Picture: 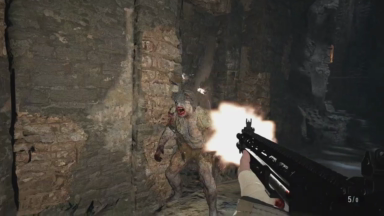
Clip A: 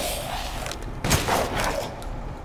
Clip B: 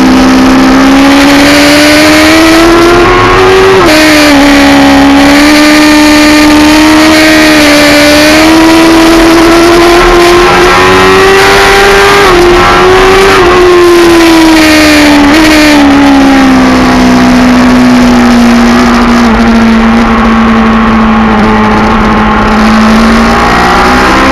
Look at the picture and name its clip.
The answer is A